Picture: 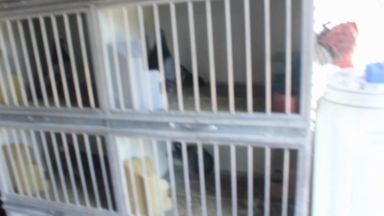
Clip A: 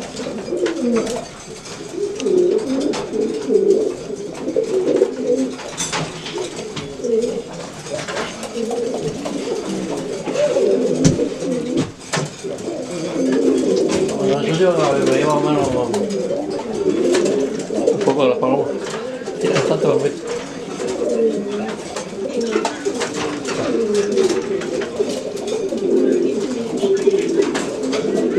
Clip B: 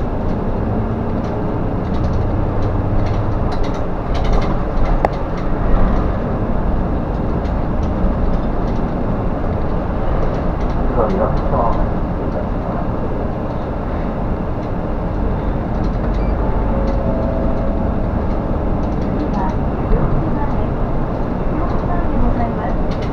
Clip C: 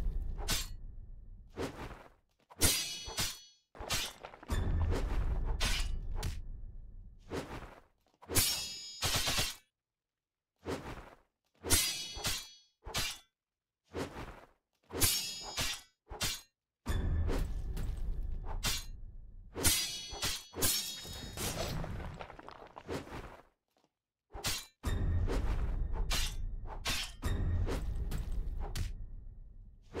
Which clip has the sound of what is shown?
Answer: A